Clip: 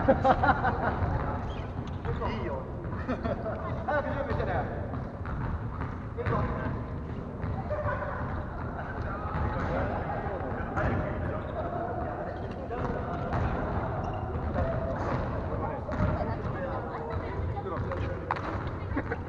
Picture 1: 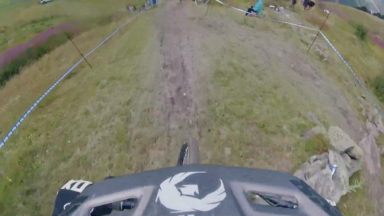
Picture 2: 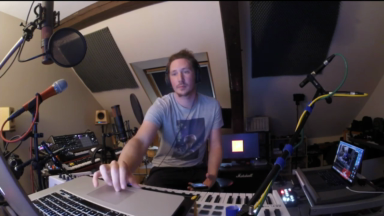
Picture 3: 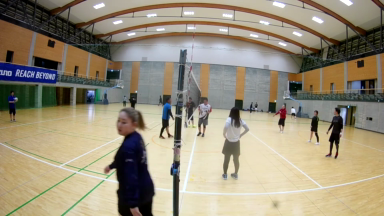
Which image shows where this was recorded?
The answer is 3